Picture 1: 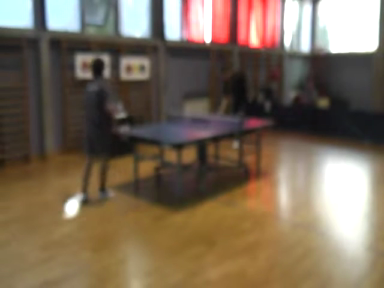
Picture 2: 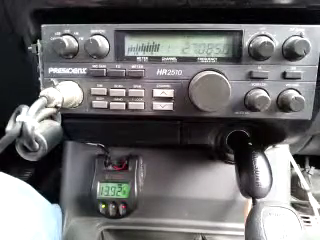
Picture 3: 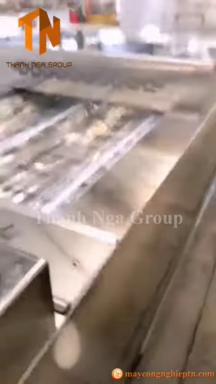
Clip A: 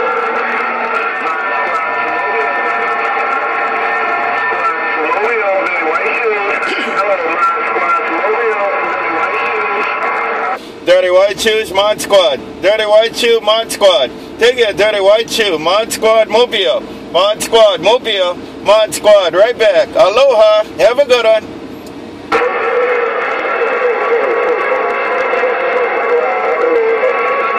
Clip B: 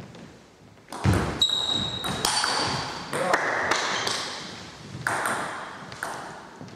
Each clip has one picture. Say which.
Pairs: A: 2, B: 1